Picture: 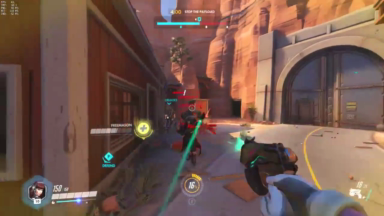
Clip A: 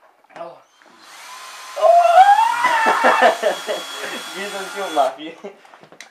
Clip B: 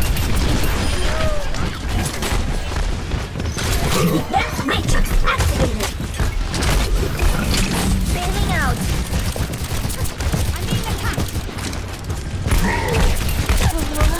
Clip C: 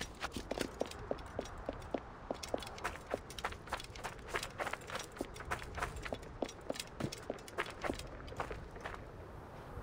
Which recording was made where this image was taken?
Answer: B